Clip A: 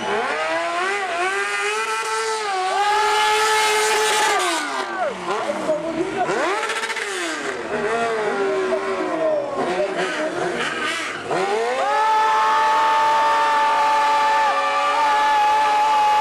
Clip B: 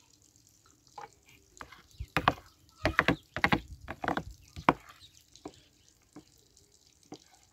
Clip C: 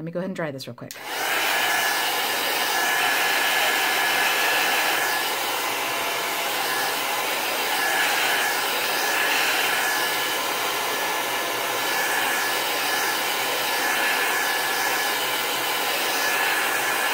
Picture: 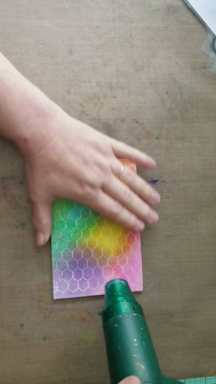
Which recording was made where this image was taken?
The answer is C